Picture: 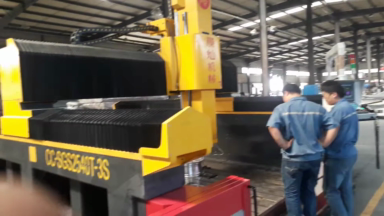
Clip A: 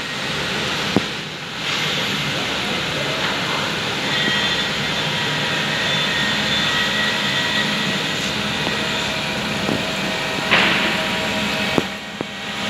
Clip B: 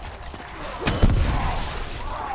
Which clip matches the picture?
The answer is A